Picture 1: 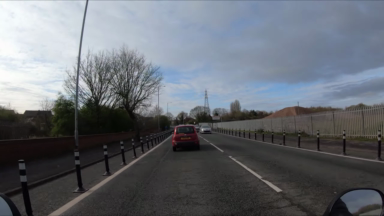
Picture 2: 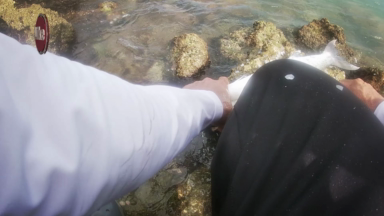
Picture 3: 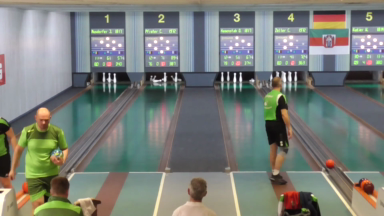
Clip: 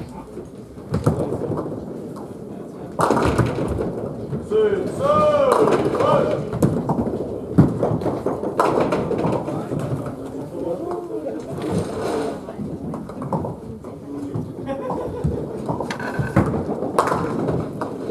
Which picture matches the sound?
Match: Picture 3